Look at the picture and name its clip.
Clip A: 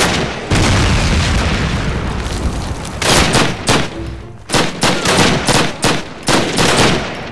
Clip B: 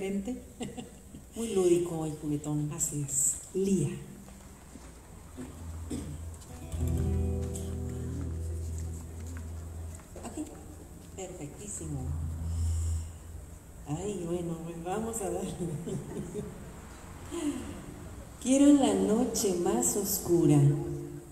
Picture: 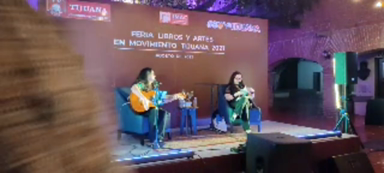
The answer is B